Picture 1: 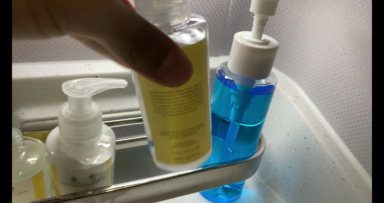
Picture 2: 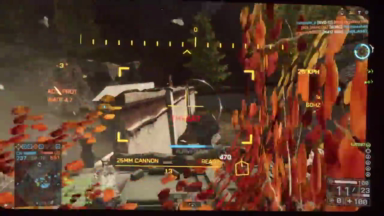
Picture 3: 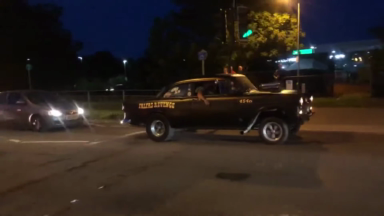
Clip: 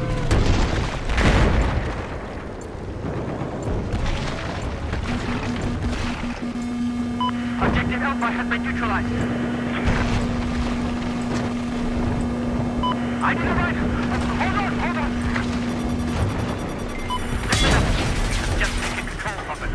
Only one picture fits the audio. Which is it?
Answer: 2